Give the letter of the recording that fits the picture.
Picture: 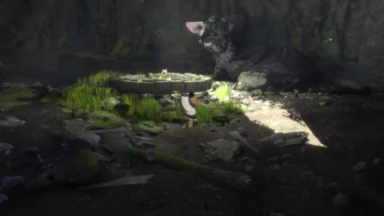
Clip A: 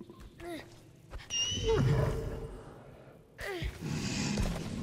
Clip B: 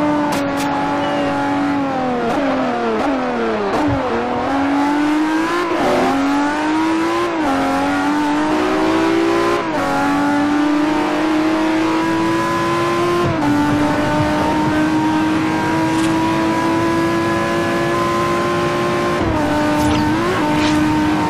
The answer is A